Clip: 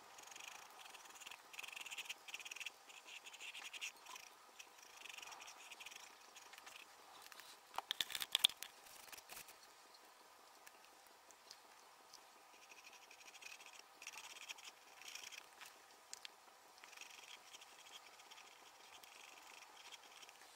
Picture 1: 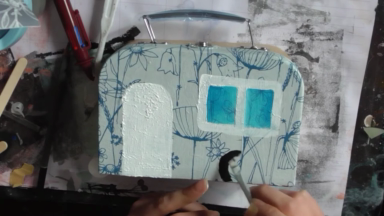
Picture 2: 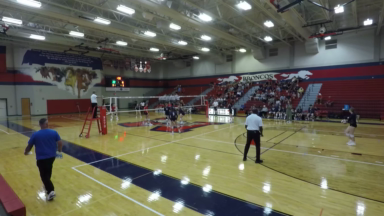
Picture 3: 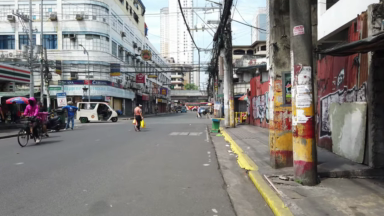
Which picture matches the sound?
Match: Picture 1